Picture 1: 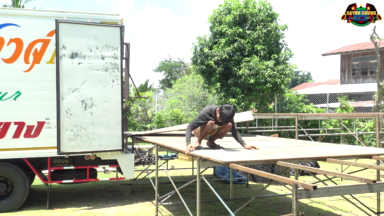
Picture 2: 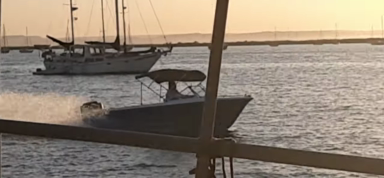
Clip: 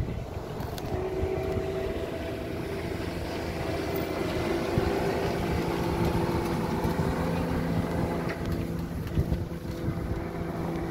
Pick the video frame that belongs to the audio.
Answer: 2